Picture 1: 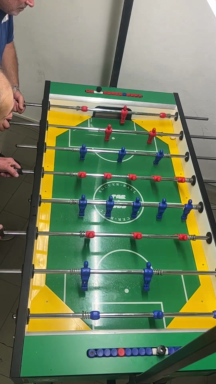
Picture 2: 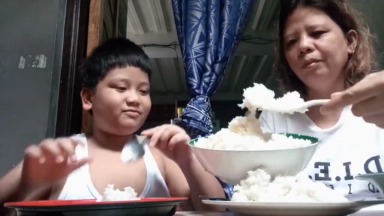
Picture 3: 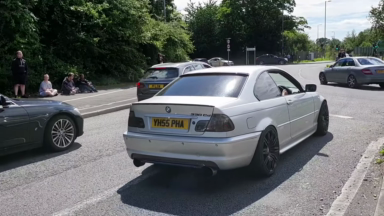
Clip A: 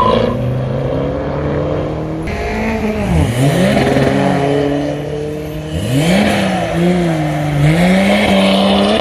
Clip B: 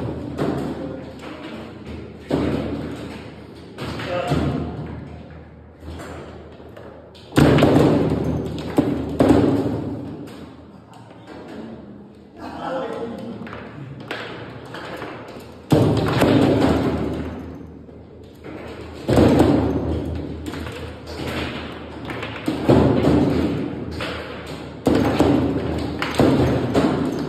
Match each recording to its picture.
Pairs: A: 3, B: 1